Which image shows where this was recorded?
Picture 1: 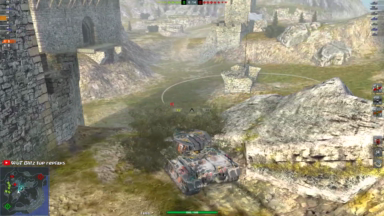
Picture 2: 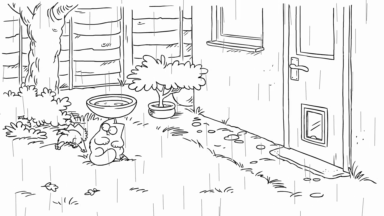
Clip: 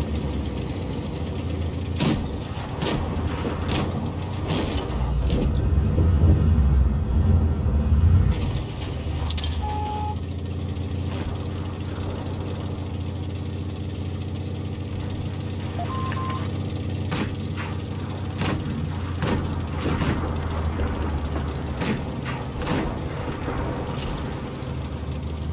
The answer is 1